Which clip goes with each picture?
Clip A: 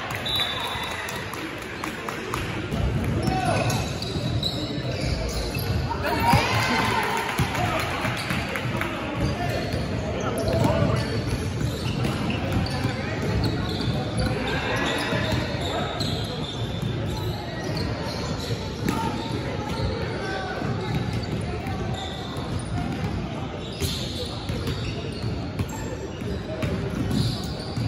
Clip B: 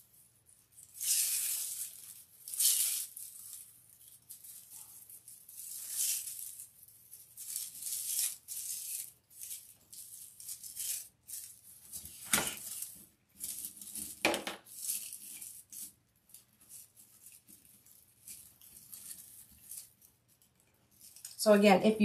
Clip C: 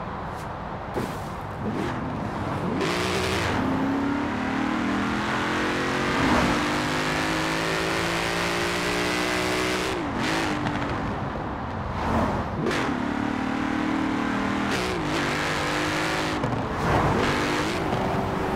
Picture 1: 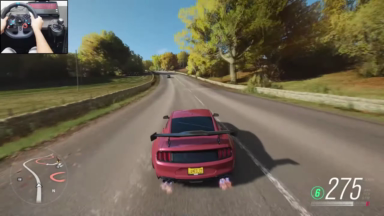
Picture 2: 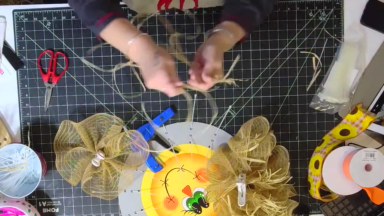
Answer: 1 C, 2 B